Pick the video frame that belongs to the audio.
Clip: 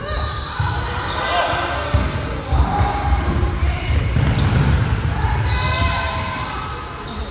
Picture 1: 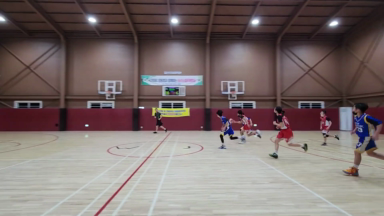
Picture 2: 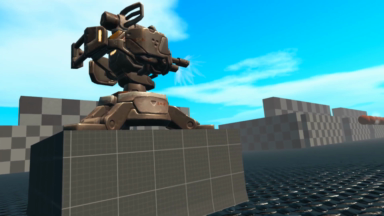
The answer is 1